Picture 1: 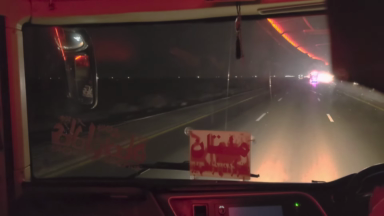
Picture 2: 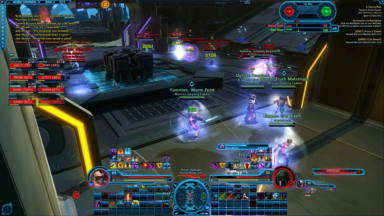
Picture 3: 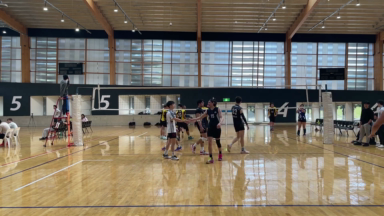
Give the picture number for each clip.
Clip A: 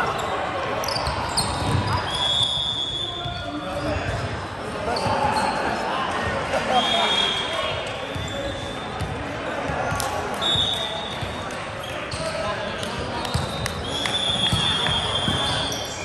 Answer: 3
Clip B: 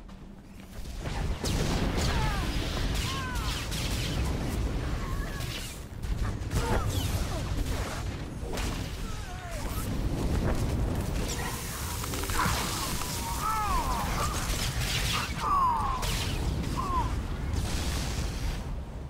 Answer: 2